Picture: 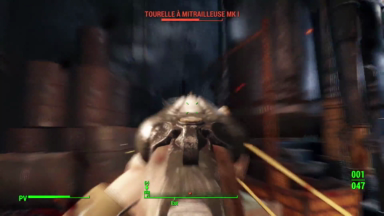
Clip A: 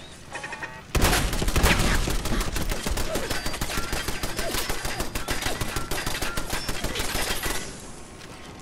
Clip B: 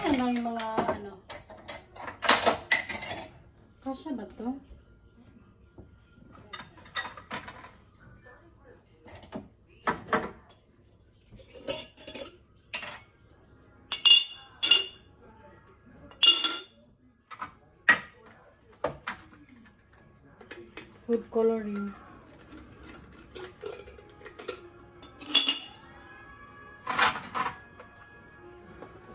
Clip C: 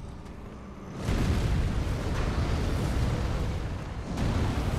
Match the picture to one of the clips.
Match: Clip A